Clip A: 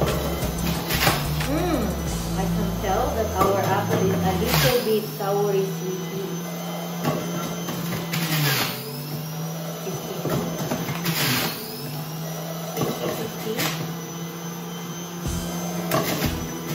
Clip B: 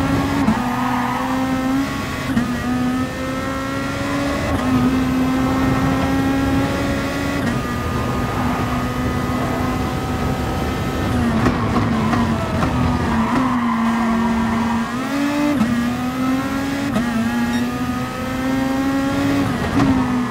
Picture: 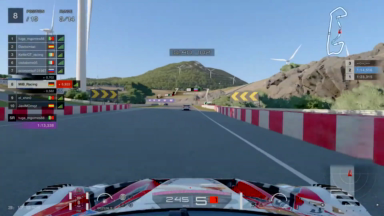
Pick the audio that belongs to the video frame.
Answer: B